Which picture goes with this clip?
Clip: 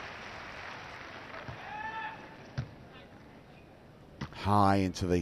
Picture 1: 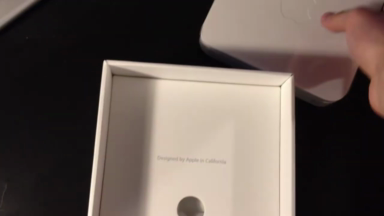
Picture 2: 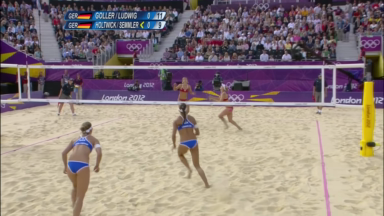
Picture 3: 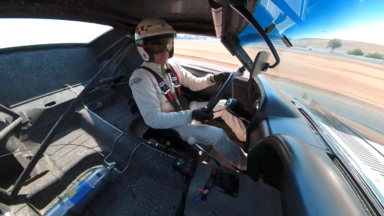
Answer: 2